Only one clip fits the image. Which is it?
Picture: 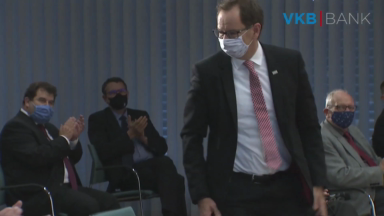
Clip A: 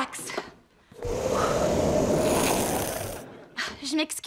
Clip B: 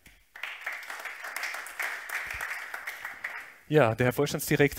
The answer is B